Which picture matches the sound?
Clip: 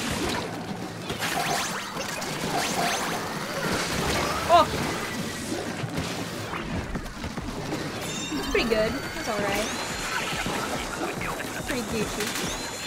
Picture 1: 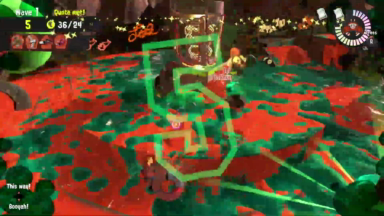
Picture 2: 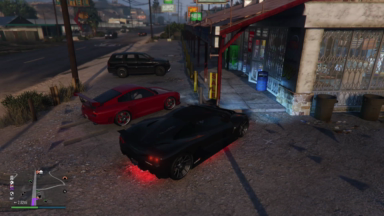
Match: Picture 1